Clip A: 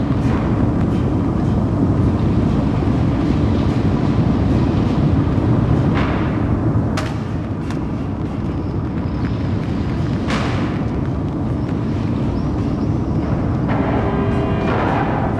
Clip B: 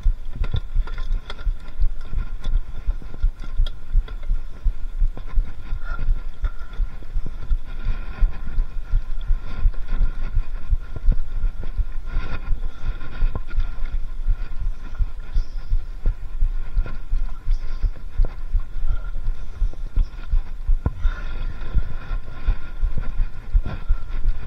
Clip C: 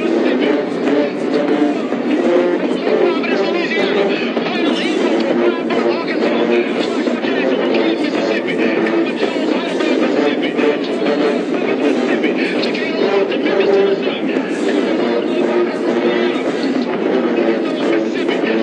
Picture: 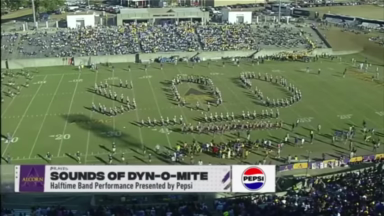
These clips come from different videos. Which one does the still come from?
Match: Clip C